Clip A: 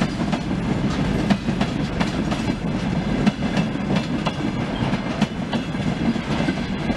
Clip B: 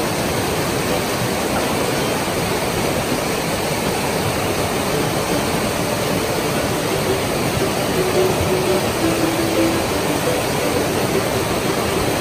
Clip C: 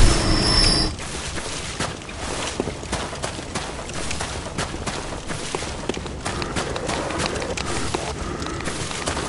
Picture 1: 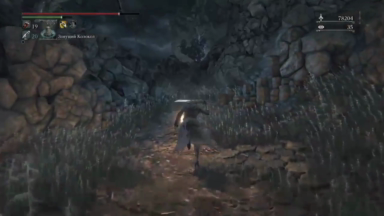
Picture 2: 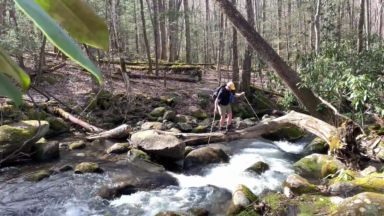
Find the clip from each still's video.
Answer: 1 C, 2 B